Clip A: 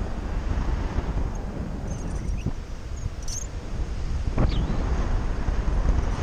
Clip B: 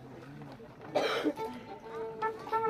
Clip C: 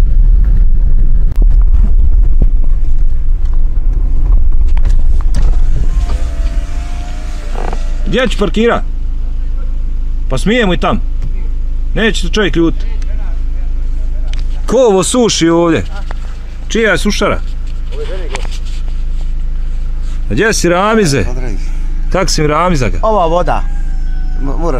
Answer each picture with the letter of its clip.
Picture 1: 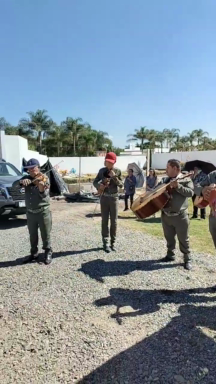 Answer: B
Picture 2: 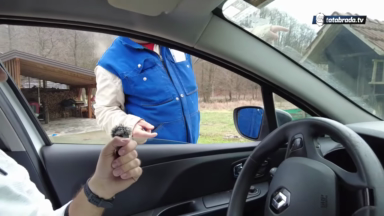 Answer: C